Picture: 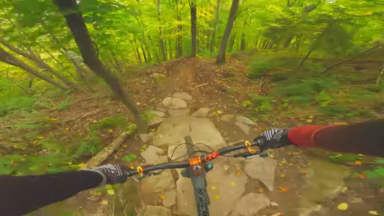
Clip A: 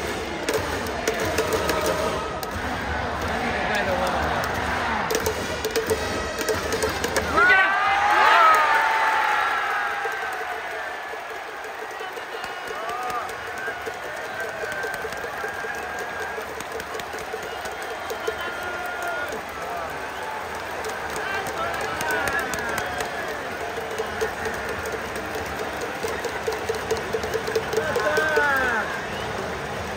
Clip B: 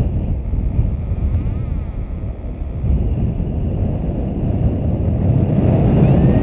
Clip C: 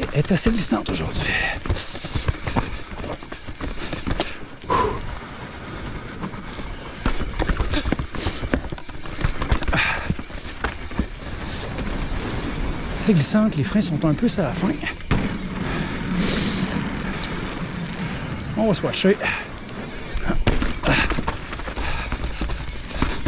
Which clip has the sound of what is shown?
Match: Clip C